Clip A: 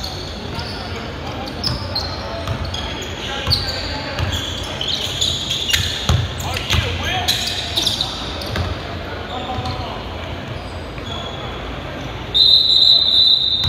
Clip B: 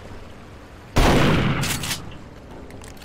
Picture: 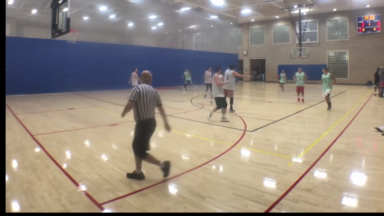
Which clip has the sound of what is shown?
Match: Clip A